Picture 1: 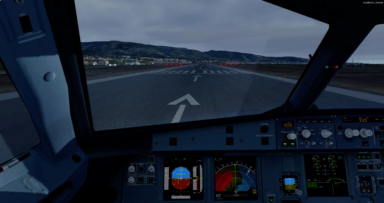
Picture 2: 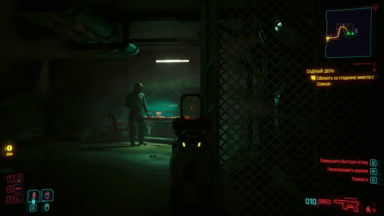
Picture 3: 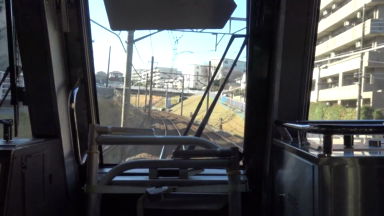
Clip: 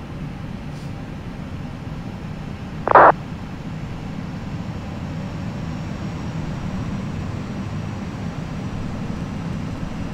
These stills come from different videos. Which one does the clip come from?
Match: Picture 1